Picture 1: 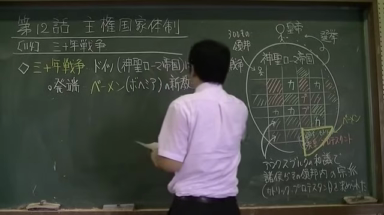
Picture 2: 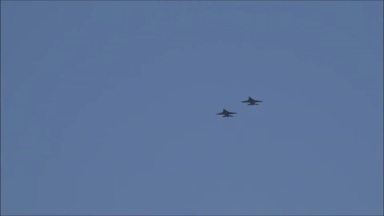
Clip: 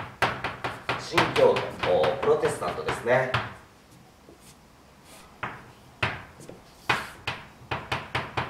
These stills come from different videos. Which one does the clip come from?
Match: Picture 1